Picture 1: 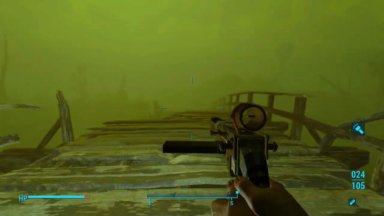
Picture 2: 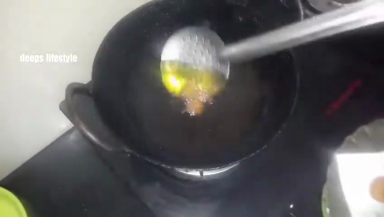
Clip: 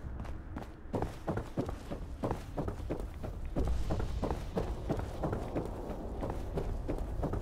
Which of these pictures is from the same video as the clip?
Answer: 1